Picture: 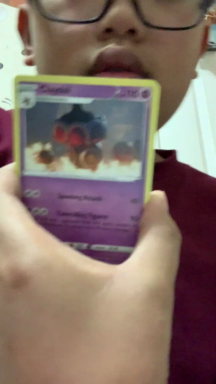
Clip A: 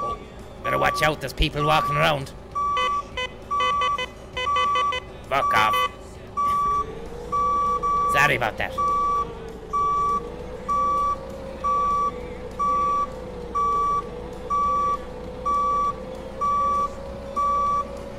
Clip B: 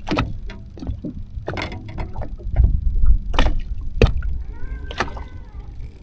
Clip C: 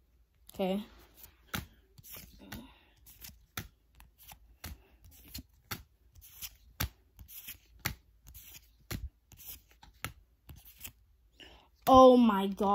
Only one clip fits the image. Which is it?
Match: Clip C